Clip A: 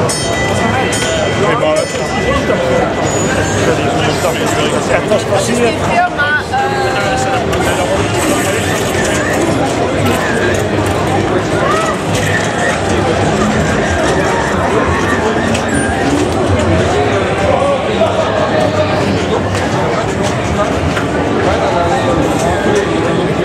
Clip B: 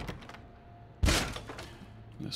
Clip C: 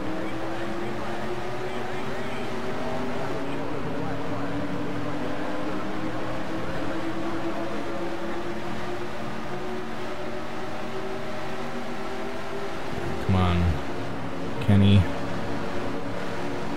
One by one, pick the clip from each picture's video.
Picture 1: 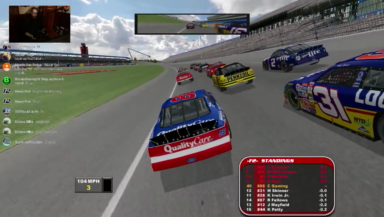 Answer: C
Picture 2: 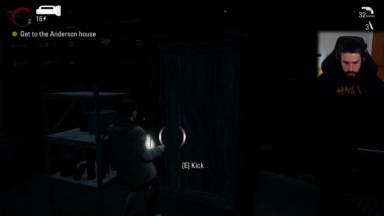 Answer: B